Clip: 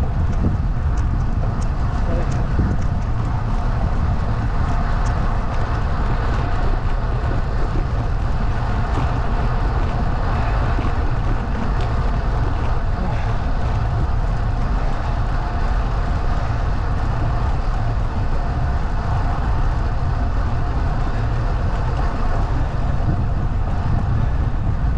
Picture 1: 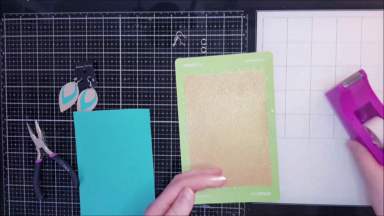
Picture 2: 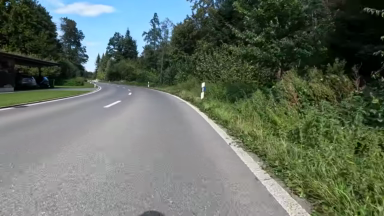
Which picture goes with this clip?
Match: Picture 2